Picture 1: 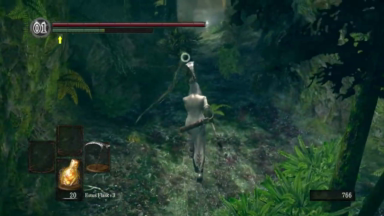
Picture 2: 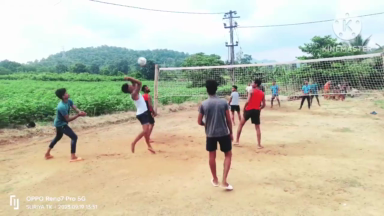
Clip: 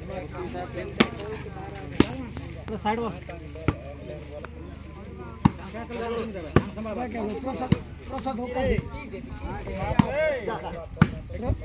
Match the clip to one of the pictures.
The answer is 2